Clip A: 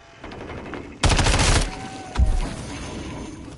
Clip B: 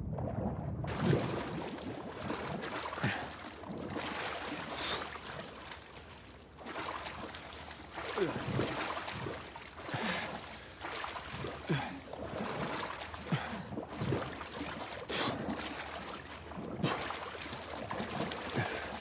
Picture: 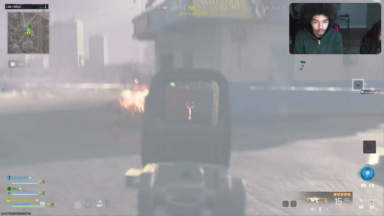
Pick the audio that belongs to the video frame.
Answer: A